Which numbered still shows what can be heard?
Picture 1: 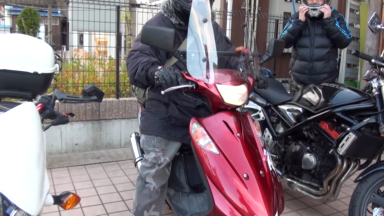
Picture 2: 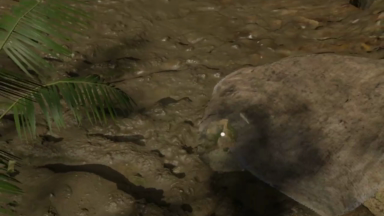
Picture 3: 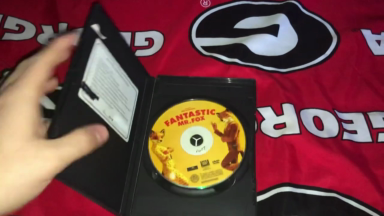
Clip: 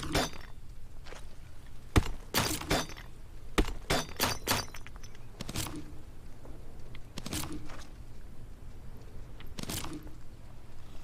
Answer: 2